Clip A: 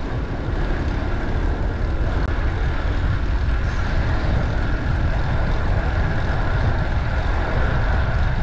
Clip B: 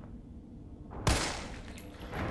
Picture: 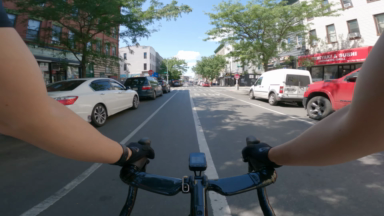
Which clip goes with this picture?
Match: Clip A